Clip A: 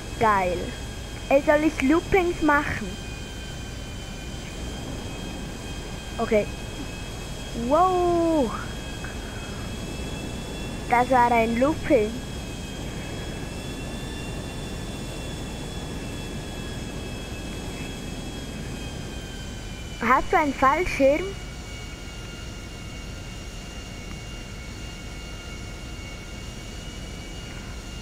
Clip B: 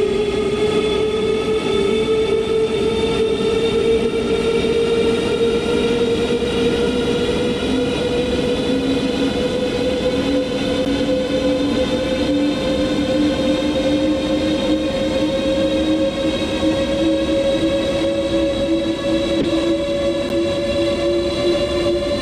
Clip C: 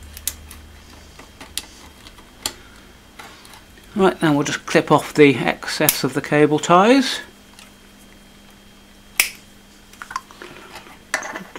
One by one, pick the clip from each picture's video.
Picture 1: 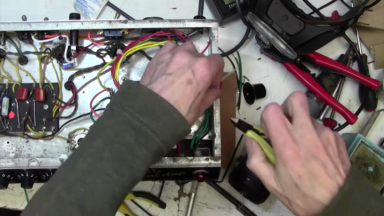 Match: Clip C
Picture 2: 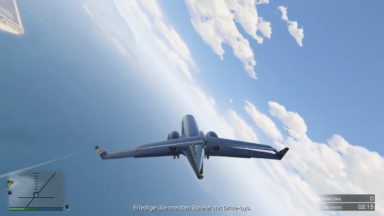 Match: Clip A